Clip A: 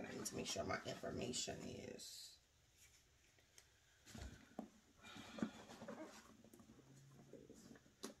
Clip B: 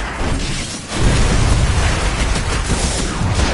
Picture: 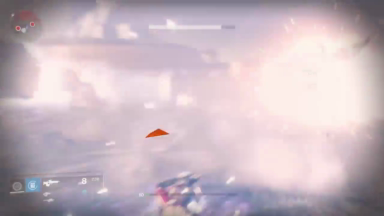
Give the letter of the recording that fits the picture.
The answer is B